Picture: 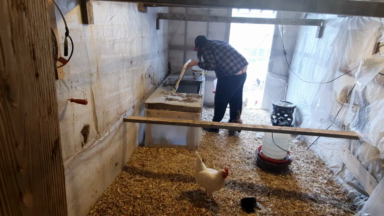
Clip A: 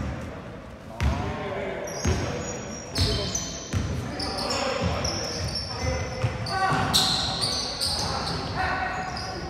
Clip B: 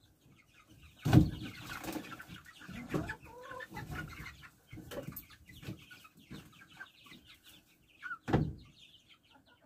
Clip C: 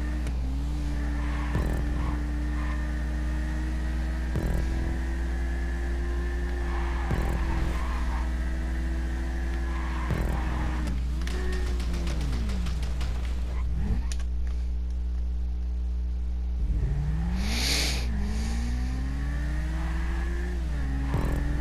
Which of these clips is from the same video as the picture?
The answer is B